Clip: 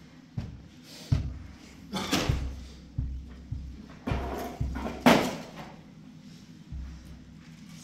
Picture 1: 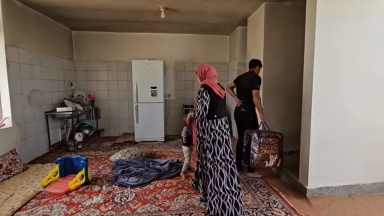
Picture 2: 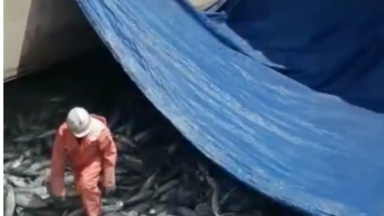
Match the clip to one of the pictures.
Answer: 1